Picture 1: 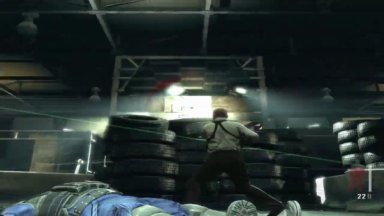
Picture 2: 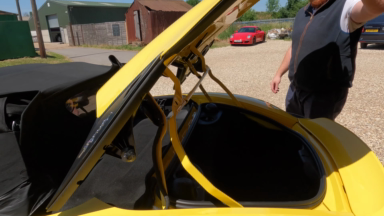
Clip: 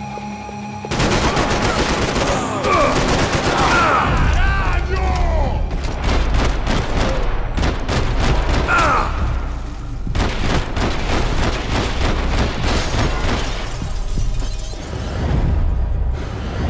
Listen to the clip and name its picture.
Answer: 1